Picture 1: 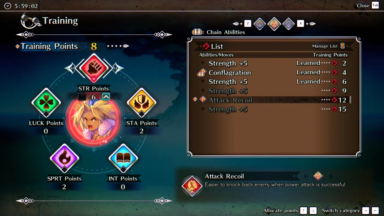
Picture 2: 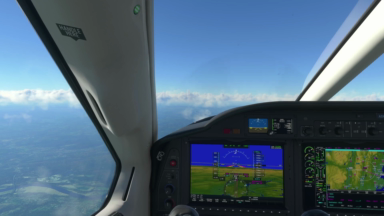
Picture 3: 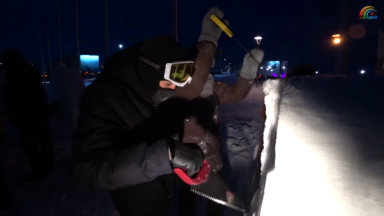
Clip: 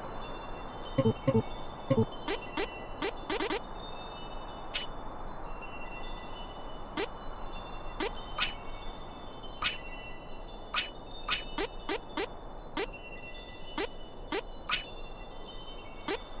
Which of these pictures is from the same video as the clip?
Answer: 1